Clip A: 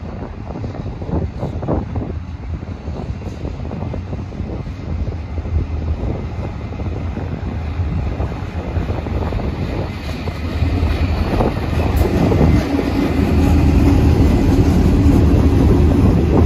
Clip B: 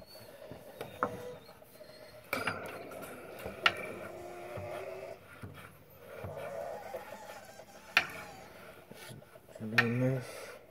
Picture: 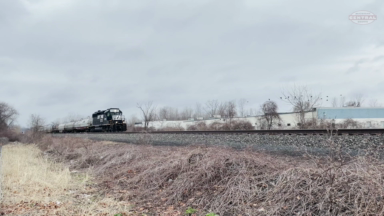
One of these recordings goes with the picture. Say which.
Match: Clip A